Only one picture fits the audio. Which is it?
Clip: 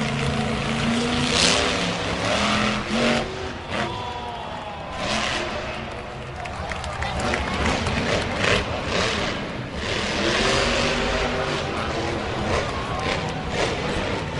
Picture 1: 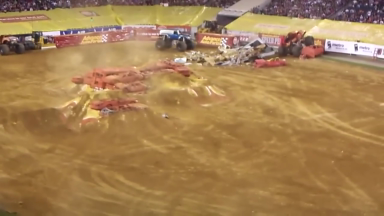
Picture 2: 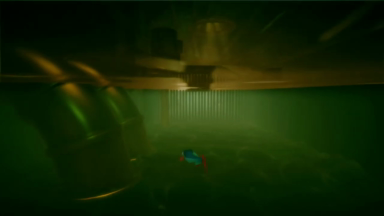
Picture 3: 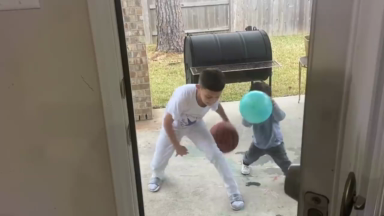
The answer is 1